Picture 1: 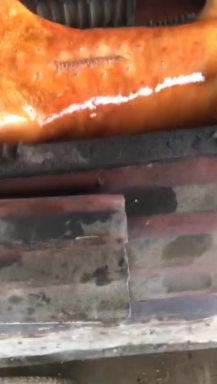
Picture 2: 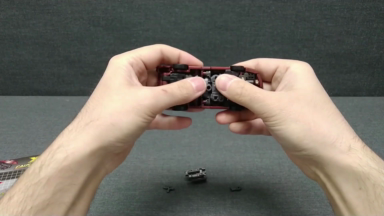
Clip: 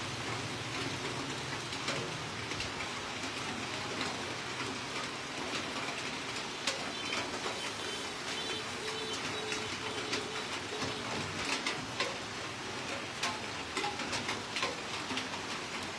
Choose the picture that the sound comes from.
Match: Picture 1